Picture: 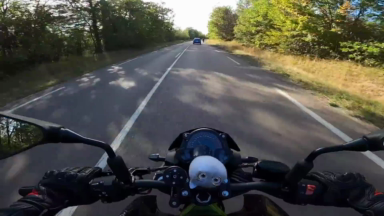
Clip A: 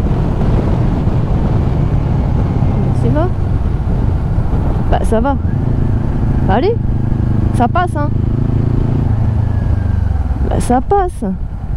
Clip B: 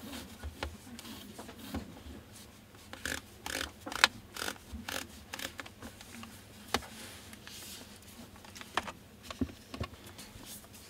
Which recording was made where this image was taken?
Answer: A